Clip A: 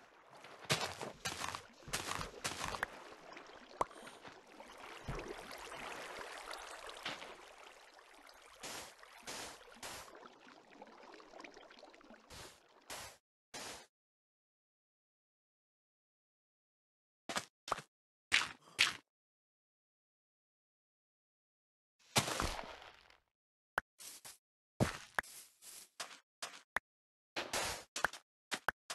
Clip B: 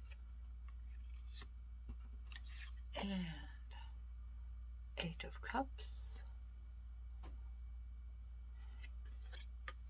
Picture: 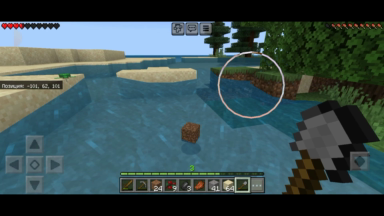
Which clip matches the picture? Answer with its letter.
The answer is A